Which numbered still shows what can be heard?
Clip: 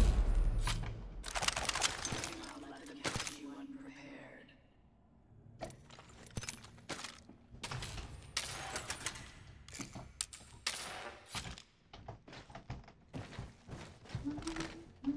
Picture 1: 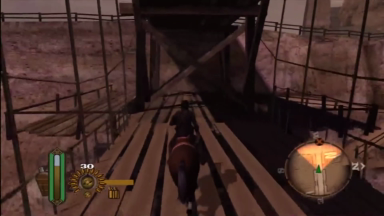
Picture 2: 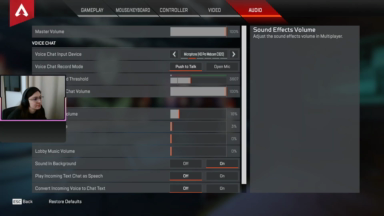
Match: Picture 2